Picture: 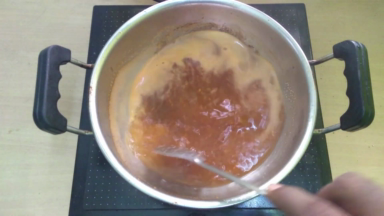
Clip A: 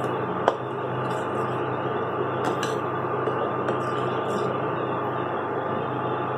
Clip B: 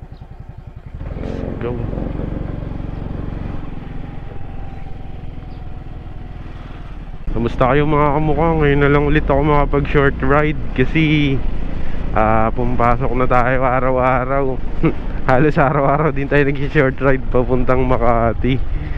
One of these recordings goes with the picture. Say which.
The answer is A